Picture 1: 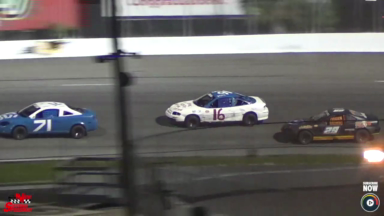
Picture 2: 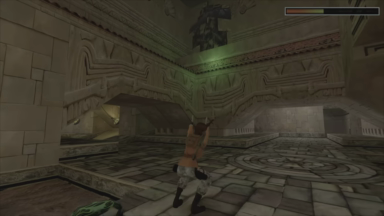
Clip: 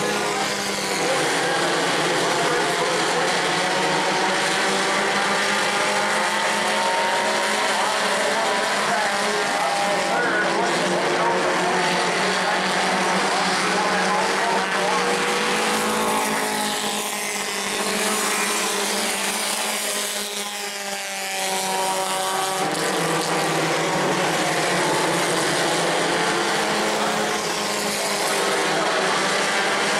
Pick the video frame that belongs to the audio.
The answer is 1